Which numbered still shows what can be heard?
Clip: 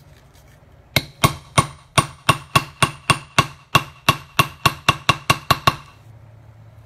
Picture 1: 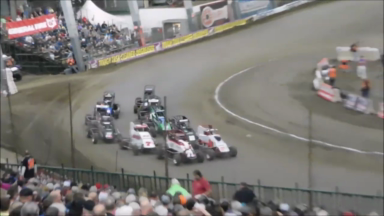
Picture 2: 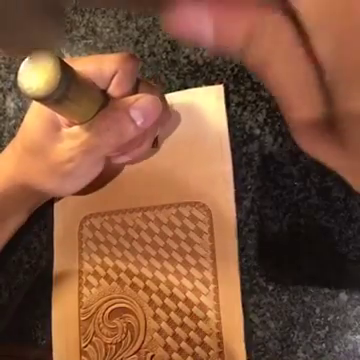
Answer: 2